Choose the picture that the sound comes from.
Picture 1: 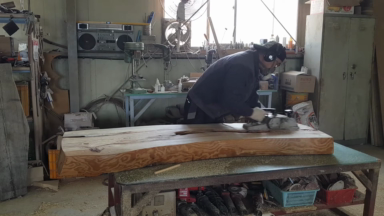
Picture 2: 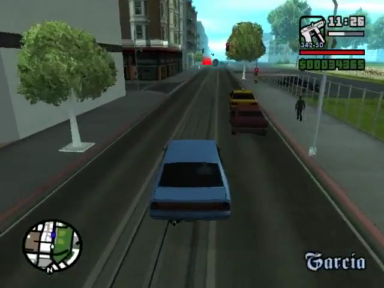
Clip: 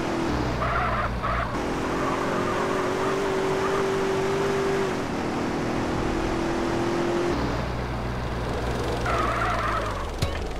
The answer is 2